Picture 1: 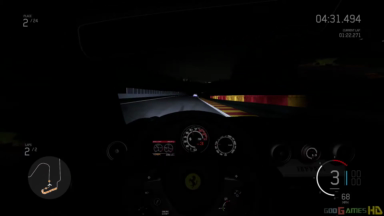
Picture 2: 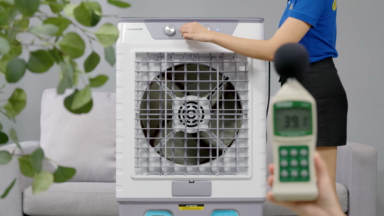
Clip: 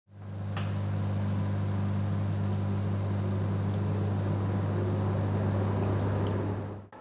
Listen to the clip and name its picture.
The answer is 2